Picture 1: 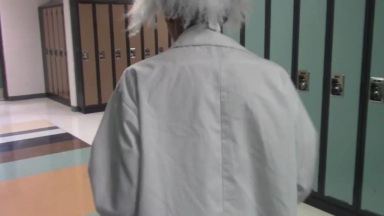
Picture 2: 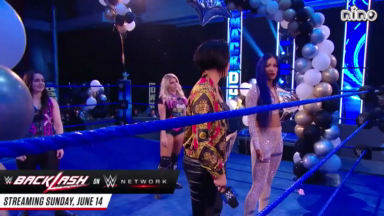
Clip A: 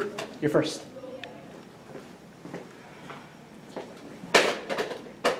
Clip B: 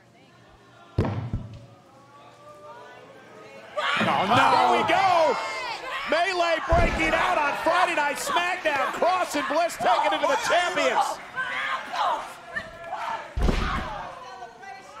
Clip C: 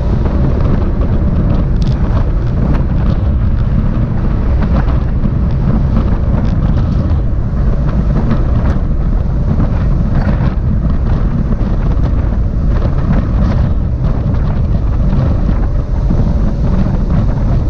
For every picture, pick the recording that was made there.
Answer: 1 A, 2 B